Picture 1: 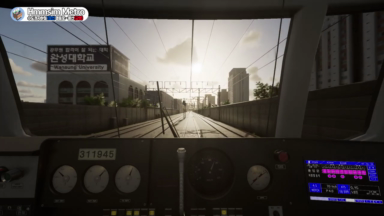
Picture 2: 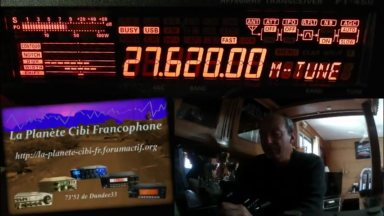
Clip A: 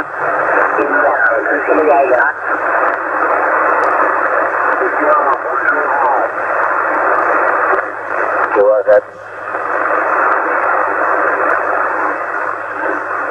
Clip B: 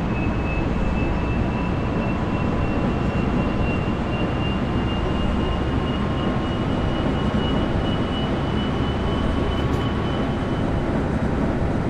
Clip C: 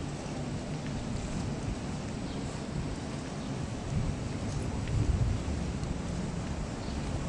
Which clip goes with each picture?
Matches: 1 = B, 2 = A